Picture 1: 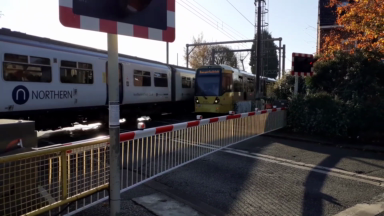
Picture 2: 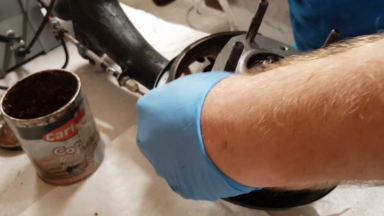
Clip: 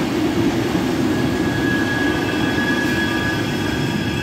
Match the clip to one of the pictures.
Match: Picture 1